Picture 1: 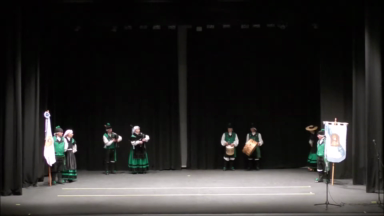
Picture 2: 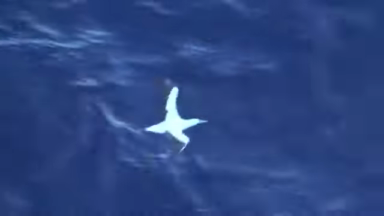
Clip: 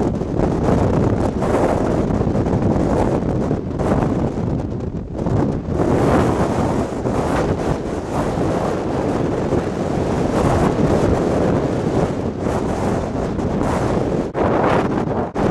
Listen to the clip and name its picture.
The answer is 2